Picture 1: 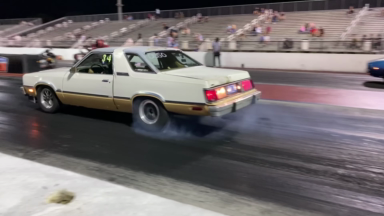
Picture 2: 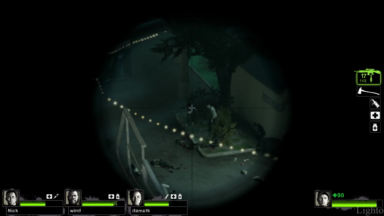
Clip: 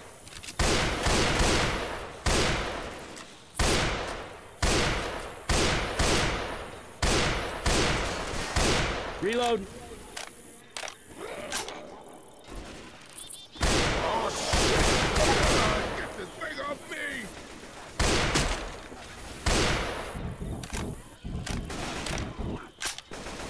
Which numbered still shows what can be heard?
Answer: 2